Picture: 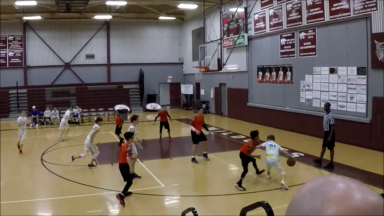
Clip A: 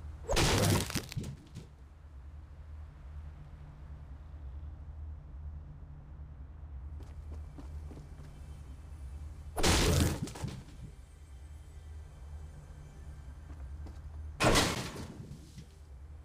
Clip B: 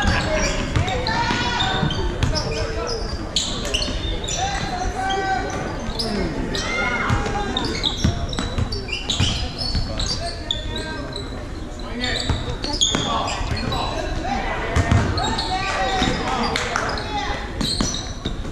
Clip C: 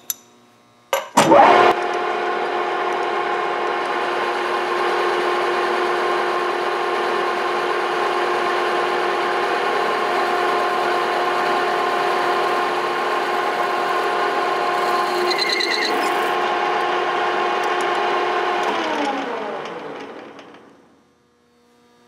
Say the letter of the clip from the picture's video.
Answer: B